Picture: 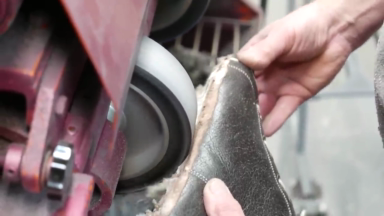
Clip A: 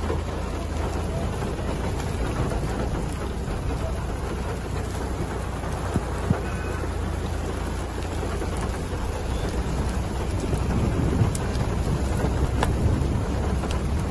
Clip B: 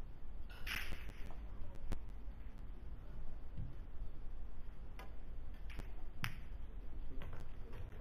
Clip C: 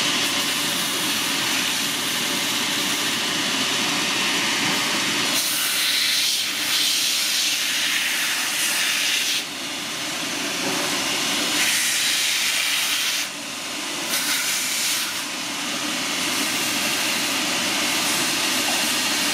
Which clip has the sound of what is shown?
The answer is C